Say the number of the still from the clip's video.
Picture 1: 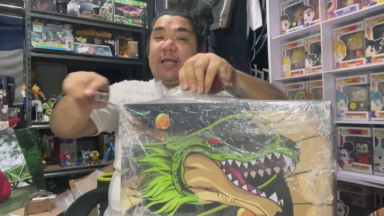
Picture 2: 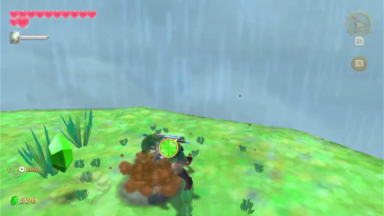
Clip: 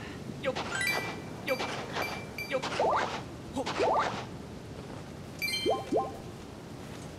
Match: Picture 2